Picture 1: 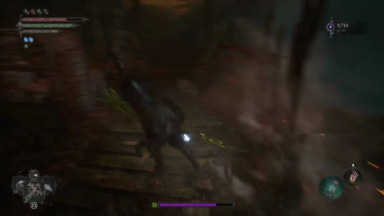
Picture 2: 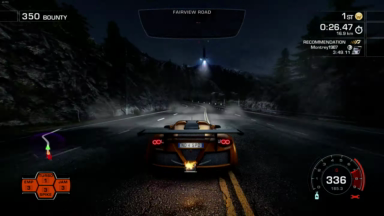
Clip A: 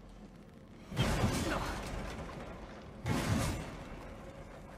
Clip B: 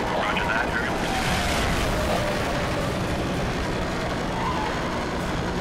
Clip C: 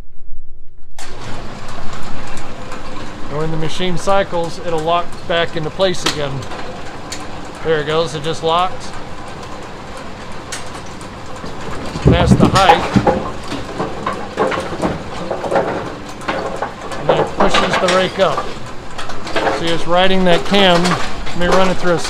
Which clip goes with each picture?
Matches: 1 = A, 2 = B